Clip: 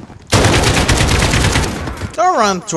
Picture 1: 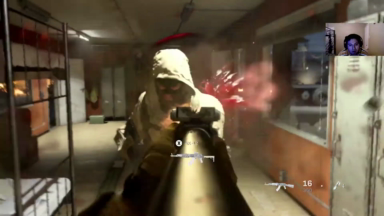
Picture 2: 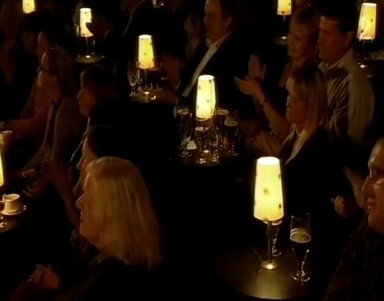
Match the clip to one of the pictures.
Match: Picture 1